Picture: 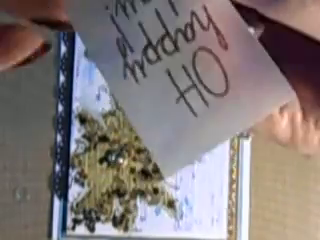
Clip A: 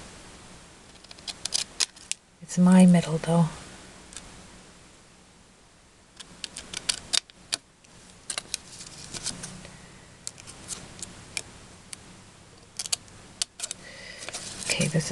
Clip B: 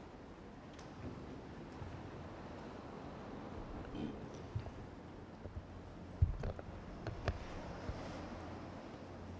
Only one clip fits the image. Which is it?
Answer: A